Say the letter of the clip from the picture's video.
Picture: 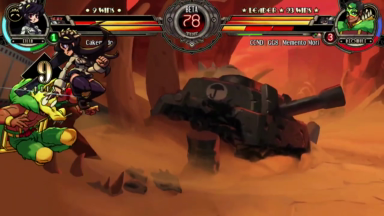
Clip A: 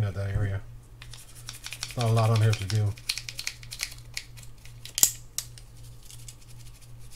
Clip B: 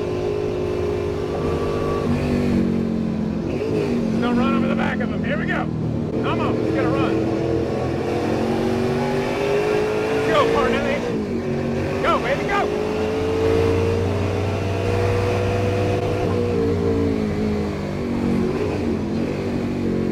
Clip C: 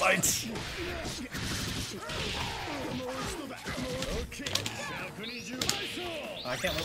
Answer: C